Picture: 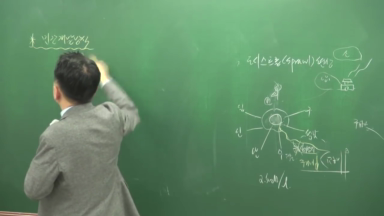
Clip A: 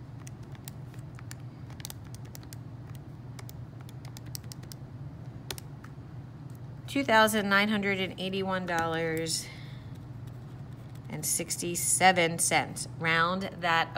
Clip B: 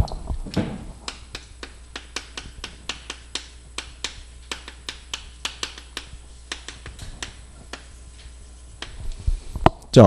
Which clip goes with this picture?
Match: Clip B